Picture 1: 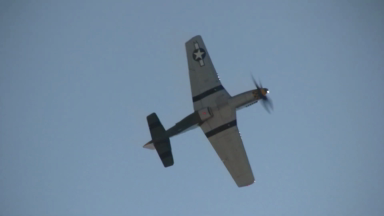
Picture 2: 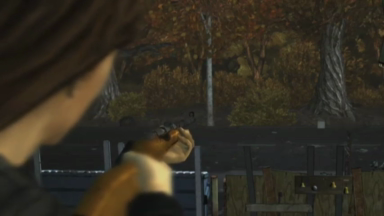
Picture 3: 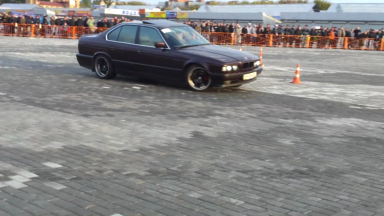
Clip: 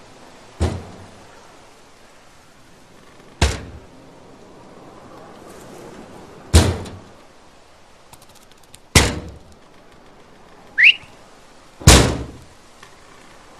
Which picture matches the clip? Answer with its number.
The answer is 2